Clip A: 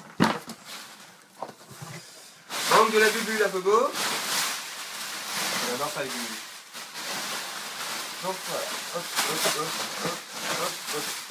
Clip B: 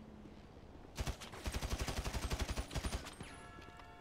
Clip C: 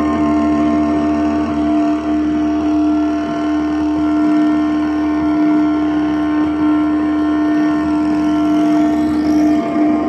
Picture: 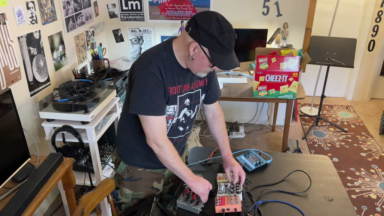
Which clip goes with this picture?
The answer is C